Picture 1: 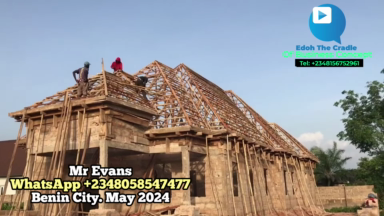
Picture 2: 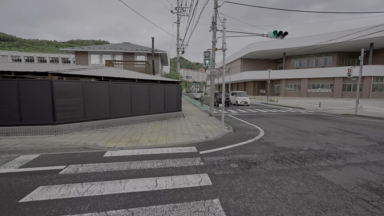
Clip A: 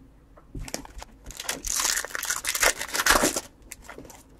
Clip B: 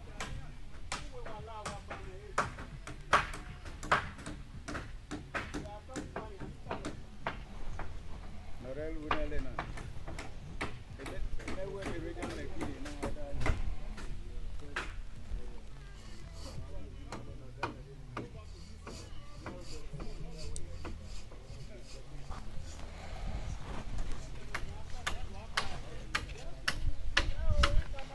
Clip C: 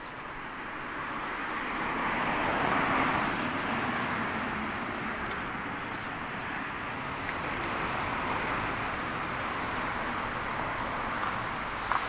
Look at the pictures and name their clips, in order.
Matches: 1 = B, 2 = C